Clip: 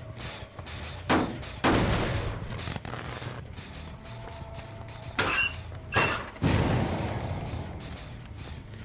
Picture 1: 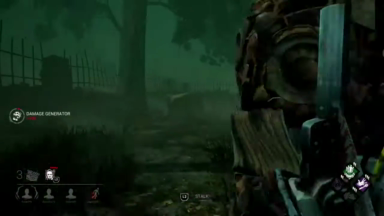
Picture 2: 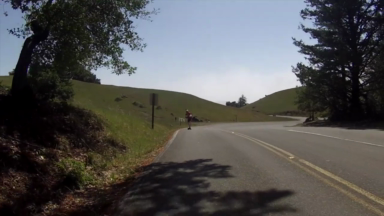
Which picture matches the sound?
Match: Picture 1